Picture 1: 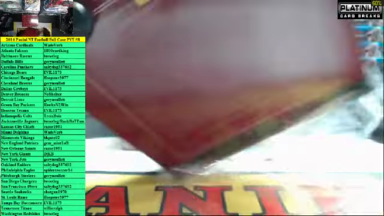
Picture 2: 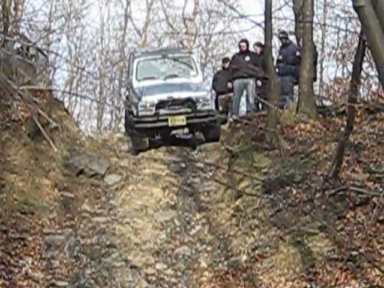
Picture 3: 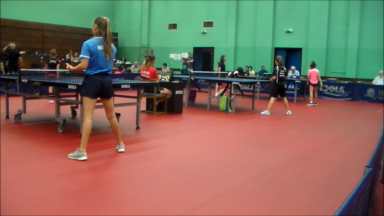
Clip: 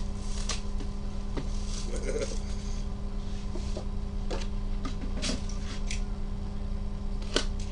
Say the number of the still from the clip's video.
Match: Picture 1